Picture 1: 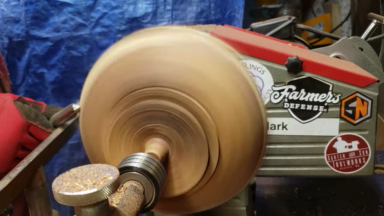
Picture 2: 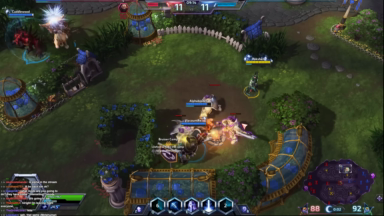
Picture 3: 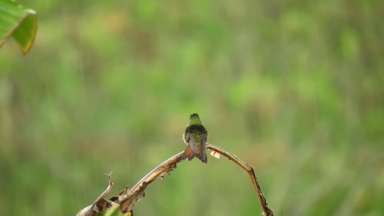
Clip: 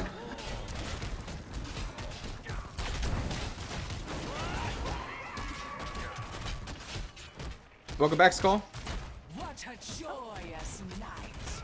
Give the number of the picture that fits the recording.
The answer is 2